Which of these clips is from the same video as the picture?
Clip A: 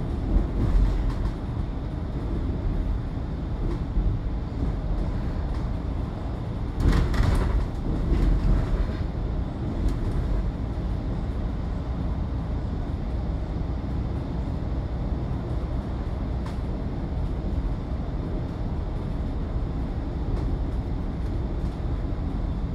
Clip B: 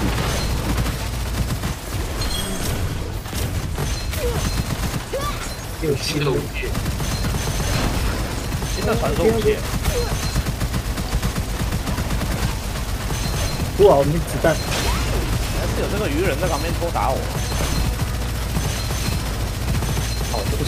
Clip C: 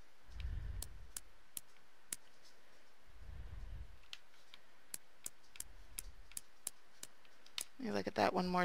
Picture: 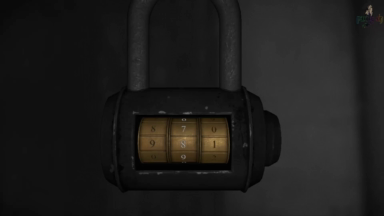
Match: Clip C